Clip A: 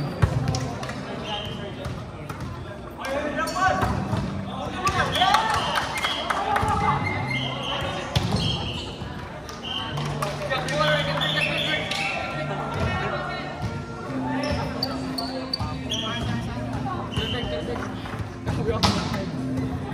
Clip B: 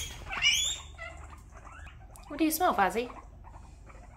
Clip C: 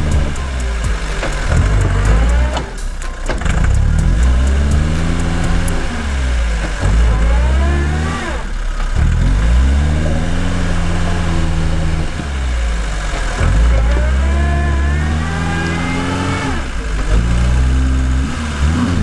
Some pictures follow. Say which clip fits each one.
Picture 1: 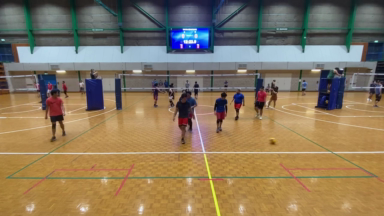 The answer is A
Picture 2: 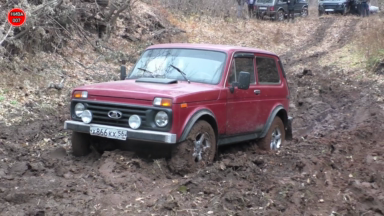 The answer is C